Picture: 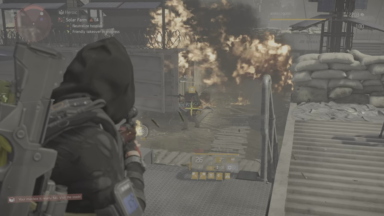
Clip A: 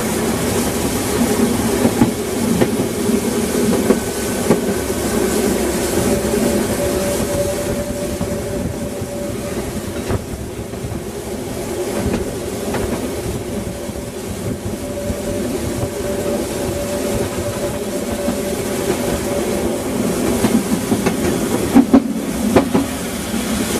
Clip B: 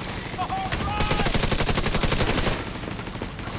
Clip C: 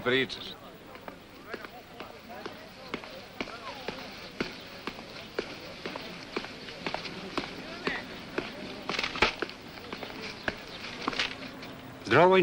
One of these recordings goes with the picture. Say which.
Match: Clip B